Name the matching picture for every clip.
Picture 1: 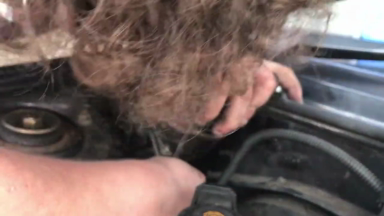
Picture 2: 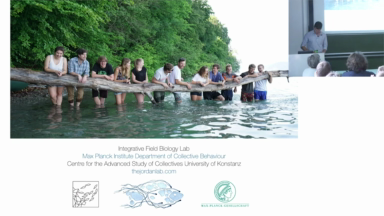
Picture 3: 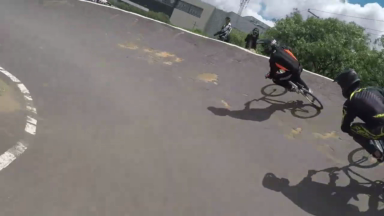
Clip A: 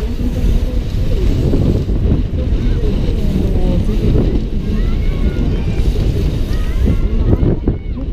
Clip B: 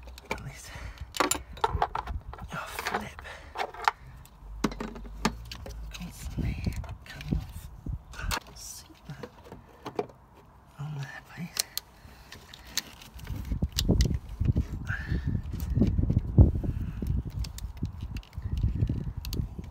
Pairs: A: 3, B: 1